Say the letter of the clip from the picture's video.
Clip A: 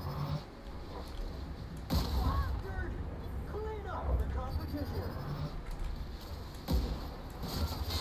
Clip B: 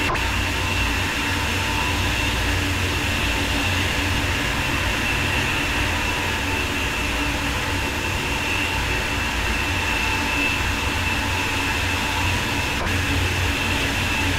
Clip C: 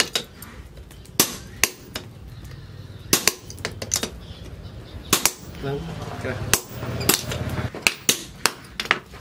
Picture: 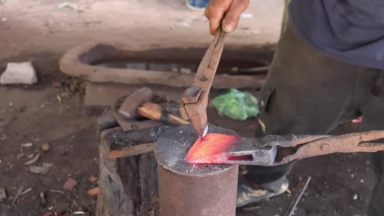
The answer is C